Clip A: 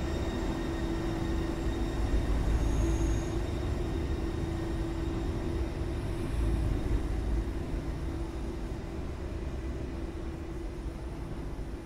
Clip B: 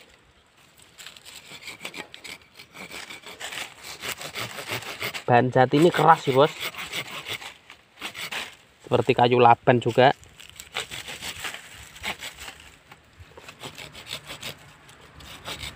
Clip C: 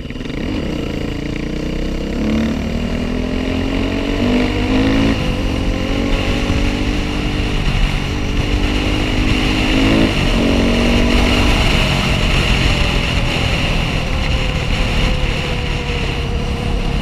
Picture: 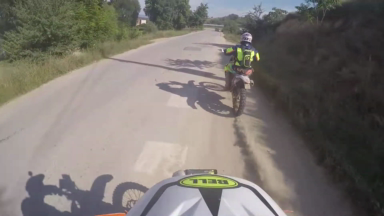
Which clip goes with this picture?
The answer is C